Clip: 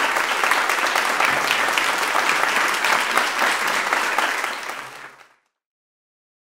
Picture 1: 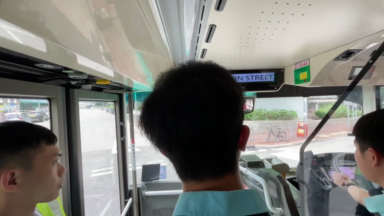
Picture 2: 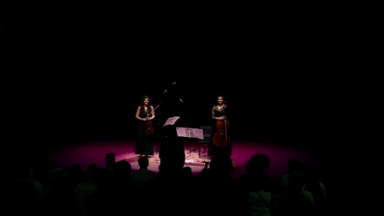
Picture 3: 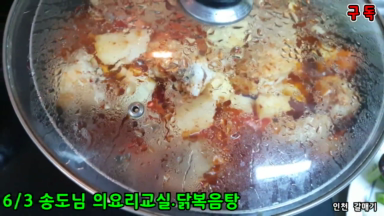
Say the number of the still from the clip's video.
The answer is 2